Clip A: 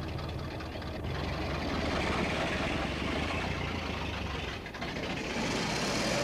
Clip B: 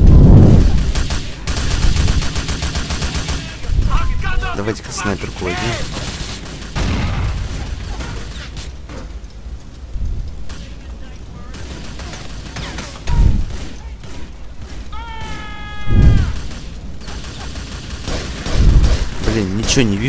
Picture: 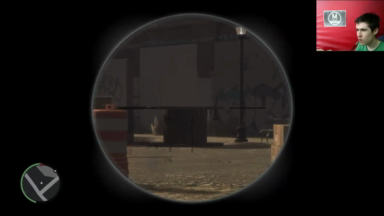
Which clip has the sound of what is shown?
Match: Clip B